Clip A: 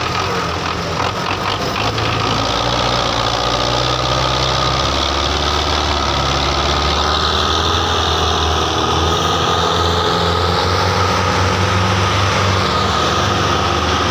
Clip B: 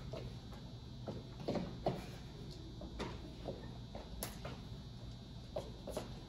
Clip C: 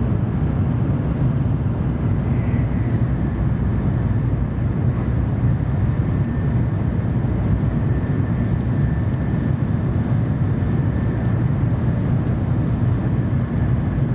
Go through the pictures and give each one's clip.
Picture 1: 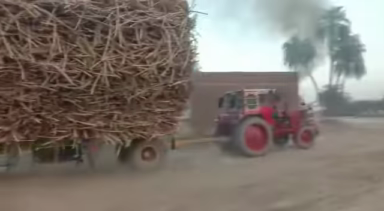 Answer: A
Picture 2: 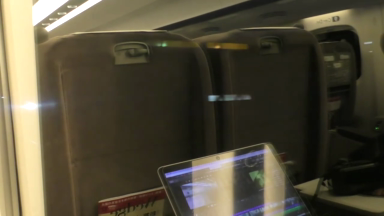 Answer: C